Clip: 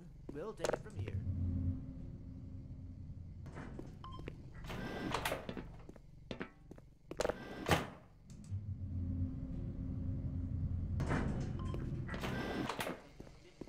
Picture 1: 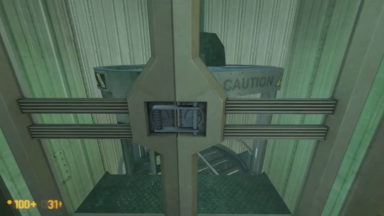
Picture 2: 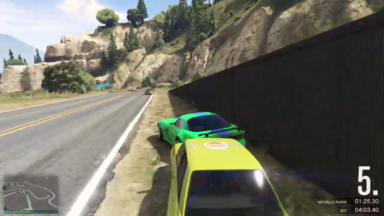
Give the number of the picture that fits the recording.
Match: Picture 1